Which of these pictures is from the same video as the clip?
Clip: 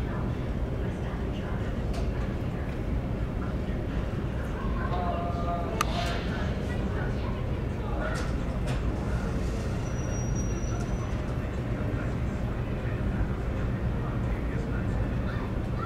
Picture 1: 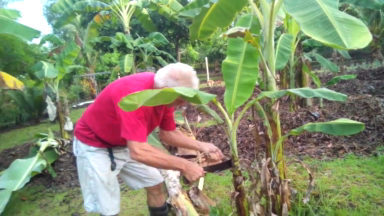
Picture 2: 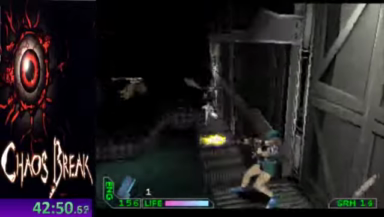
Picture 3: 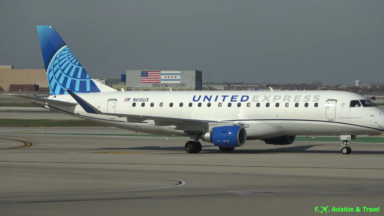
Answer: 3